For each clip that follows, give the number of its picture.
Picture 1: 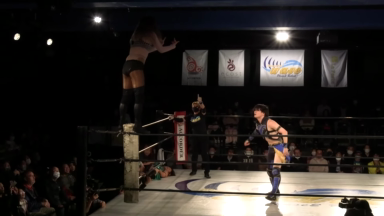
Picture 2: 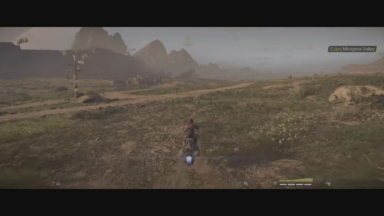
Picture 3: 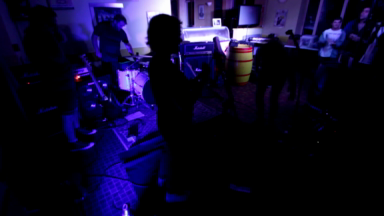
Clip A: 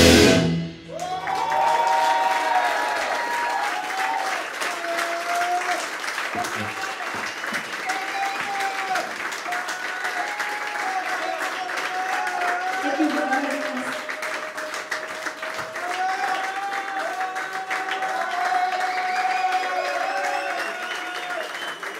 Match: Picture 3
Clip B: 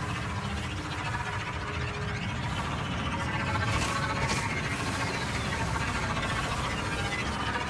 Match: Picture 2